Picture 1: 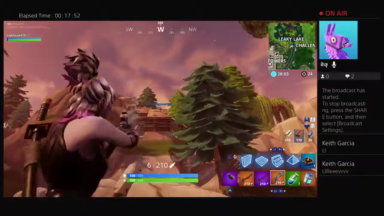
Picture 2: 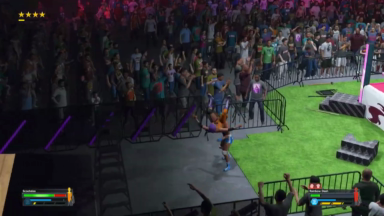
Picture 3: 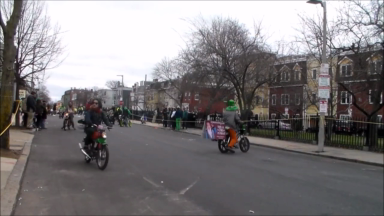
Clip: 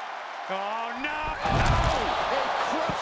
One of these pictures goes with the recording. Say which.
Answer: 2